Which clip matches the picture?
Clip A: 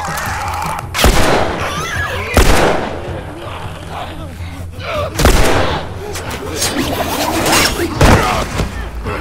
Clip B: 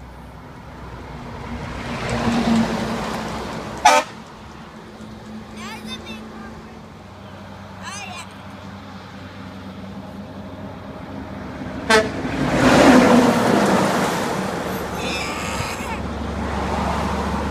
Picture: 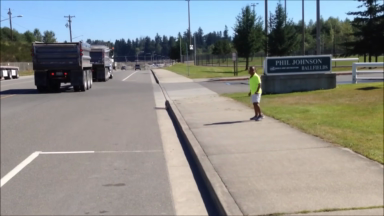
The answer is B